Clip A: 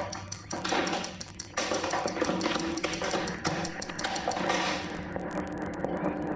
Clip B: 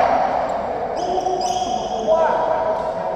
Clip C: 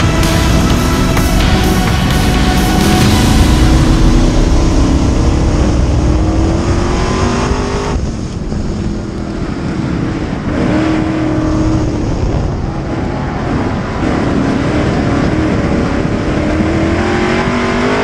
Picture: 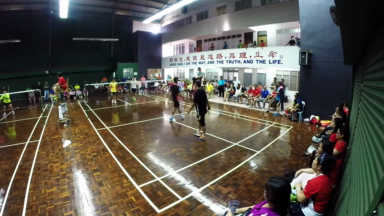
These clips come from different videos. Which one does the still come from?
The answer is B